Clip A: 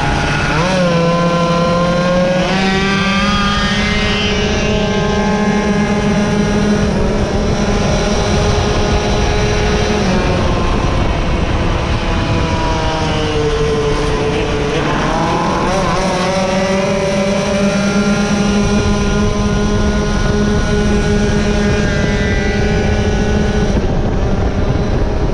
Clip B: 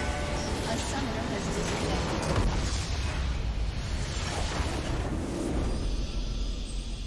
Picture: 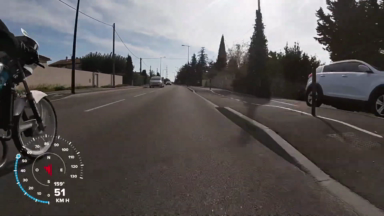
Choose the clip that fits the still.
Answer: A